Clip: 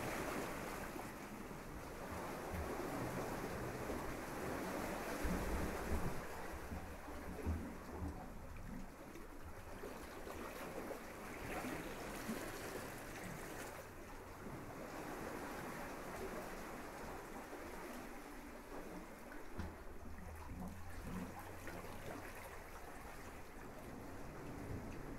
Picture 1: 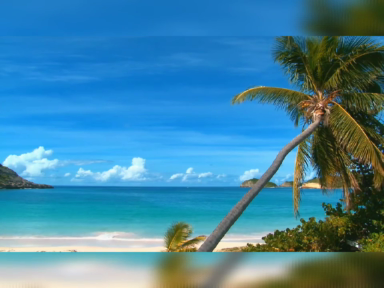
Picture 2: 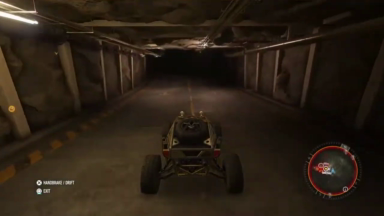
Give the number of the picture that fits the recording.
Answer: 1